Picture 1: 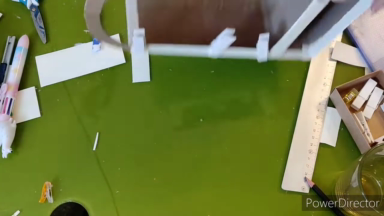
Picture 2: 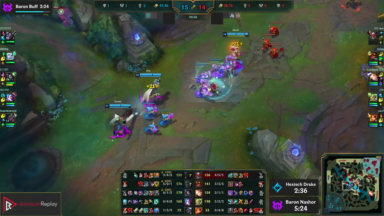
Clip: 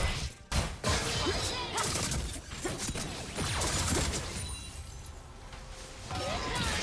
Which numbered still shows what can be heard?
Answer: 2